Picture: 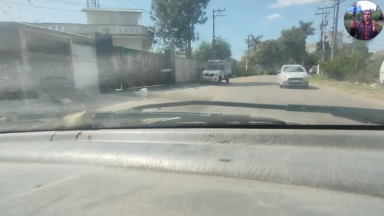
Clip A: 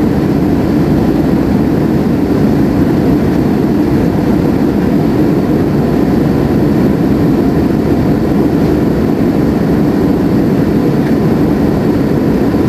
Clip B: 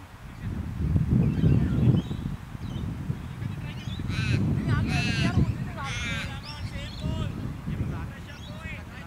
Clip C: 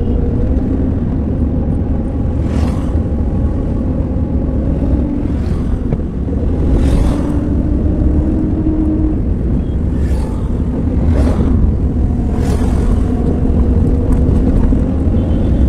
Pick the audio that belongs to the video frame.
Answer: C